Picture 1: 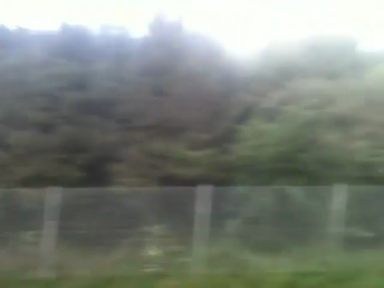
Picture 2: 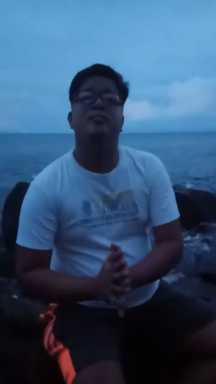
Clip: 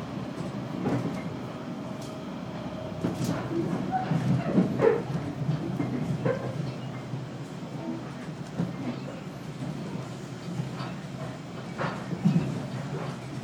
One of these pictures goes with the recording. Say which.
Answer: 1